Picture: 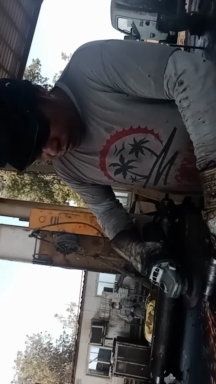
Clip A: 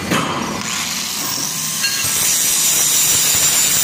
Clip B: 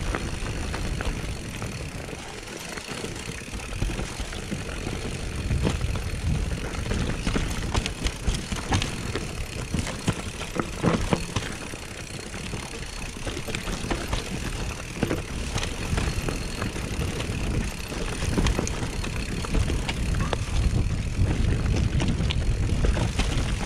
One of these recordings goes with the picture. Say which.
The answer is A